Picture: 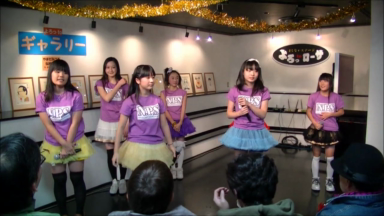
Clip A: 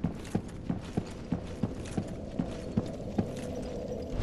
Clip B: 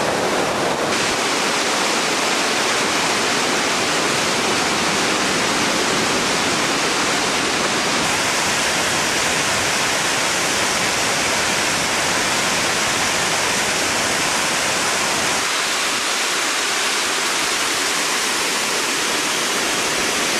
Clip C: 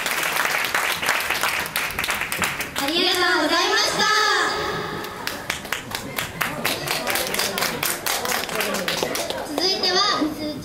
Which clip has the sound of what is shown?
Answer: C